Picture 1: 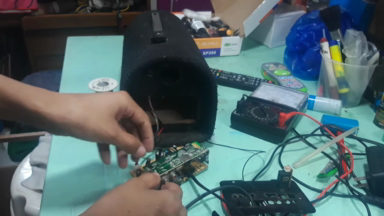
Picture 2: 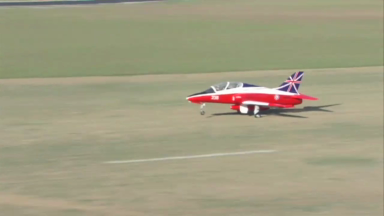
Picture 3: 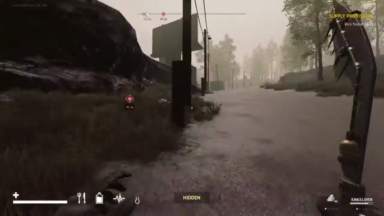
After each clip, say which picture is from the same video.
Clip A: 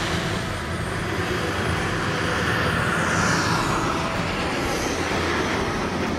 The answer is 2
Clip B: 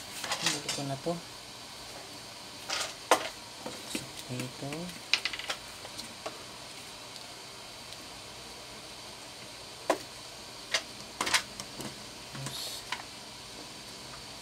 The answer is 1